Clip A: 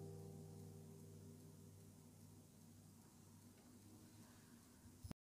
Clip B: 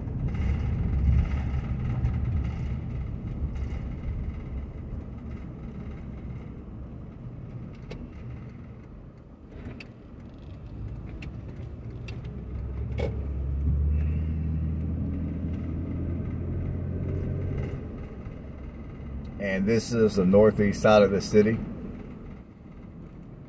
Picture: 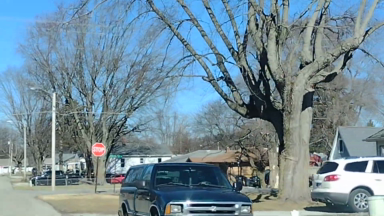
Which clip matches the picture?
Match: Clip B